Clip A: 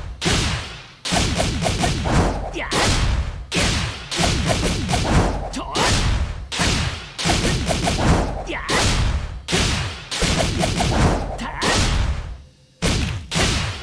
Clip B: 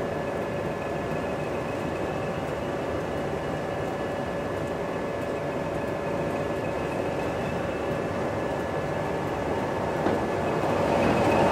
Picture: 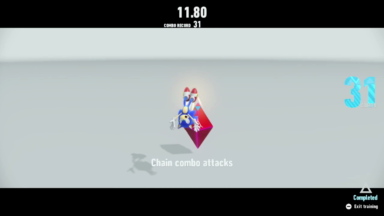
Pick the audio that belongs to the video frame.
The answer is A